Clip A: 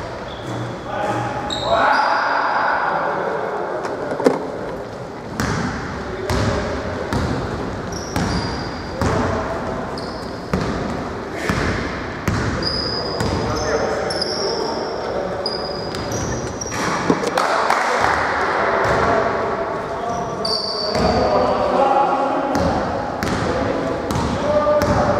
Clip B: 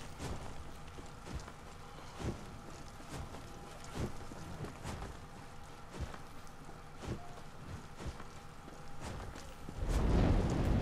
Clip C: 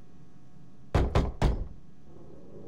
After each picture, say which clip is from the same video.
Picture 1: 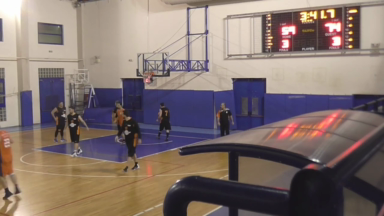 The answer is A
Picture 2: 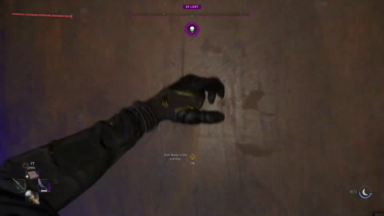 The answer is C